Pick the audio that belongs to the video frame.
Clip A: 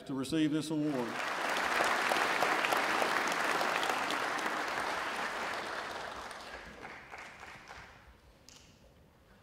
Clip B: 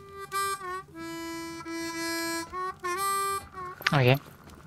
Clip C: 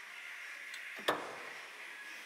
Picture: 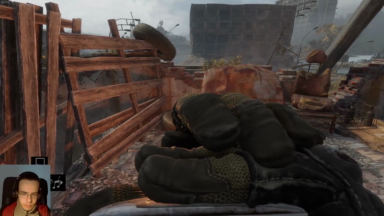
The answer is B